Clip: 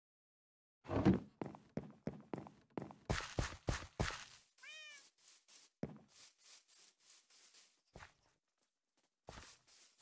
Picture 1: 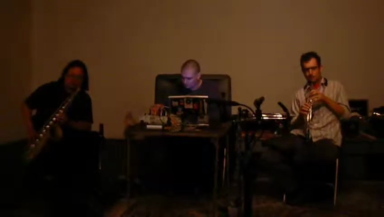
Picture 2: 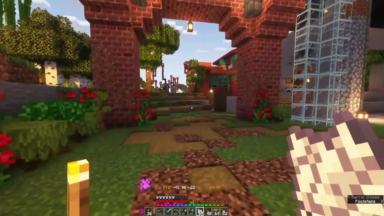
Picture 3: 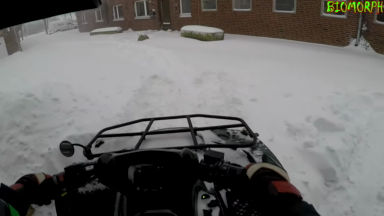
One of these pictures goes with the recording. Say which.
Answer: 2